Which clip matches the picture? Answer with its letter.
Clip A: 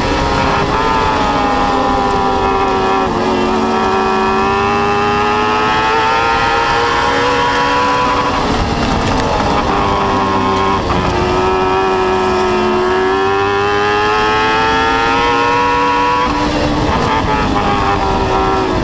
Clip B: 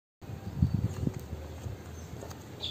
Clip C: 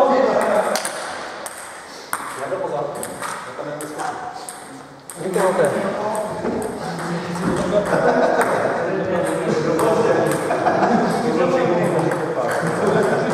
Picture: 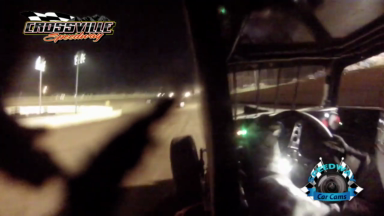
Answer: A